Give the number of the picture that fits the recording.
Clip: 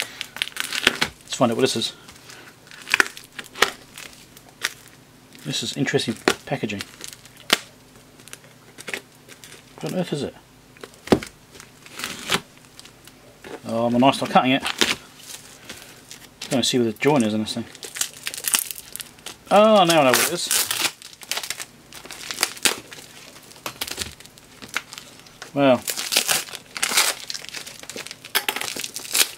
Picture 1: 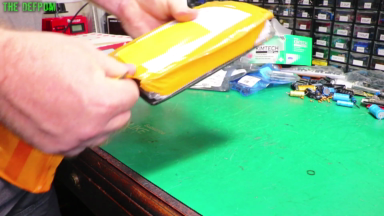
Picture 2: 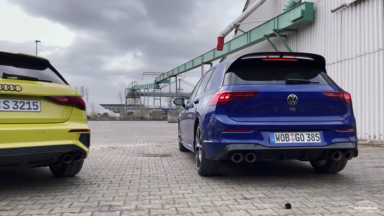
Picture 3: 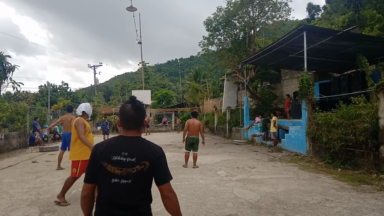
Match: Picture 1